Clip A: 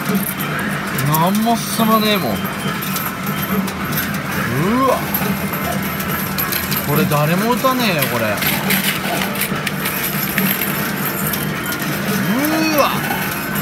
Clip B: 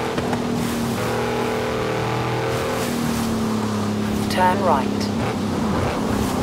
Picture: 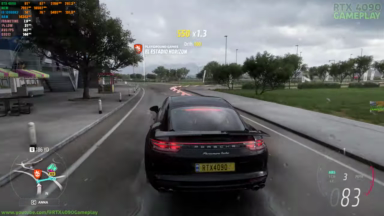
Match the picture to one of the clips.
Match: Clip B